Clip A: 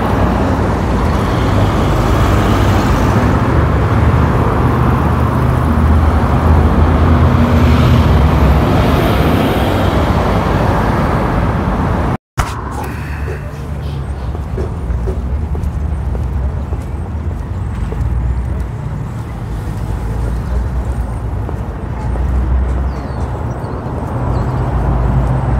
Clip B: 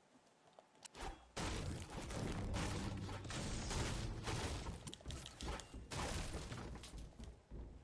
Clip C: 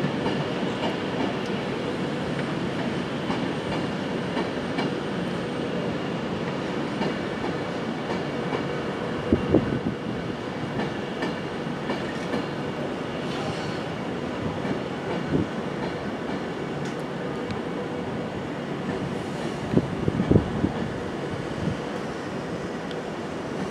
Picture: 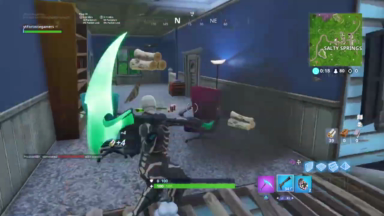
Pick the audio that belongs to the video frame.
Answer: B